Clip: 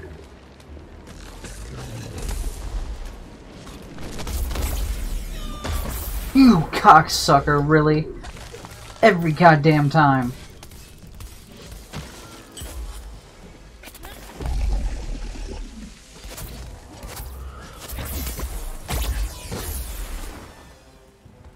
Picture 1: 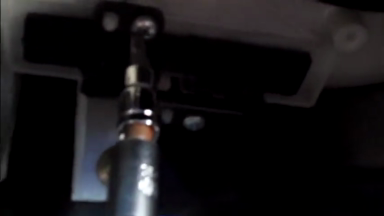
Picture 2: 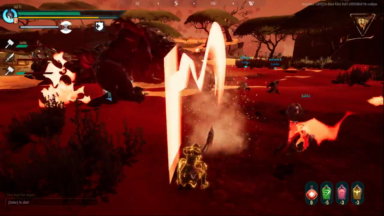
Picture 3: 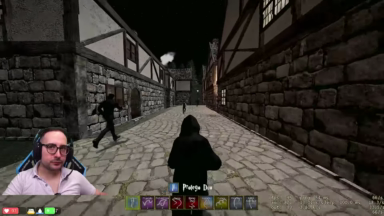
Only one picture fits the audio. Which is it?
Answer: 2